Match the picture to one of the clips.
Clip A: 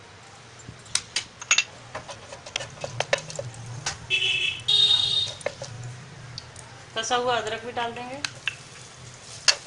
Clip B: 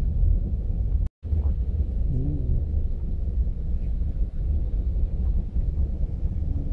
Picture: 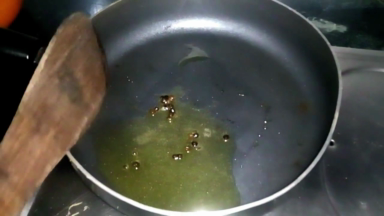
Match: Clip A